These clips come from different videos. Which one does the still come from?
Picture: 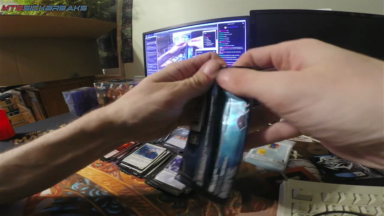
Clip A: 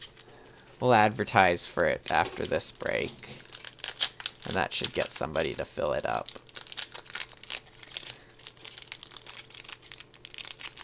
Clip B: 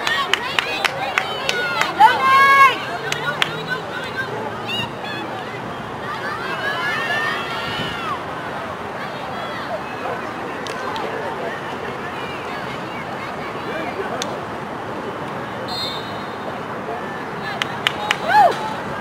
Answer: A